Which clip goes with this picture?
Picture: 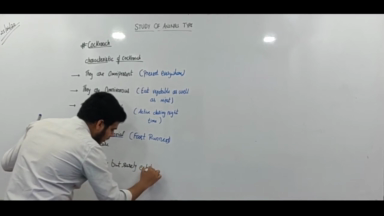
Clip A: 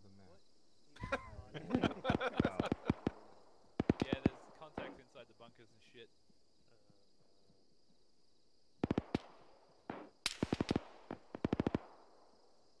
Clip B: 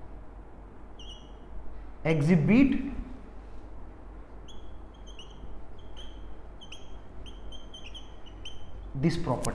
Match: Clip B